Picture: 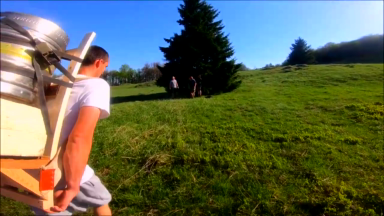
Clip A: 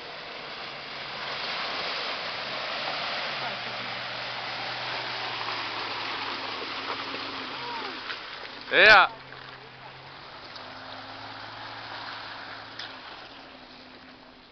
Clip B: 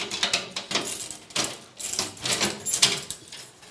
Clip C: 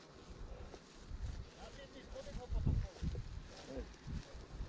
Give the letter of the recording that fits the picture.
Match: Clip C